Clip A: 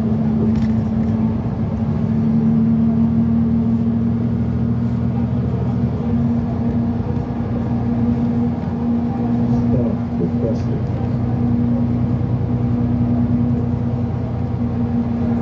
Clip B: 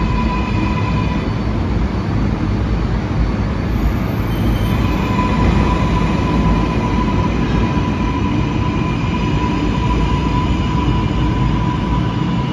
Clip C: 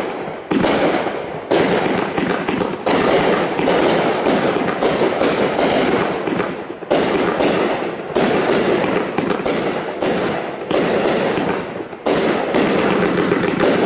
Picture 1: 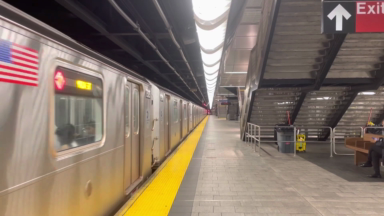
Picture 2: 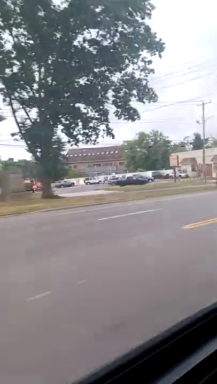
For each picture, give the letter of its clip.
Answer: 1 B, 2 A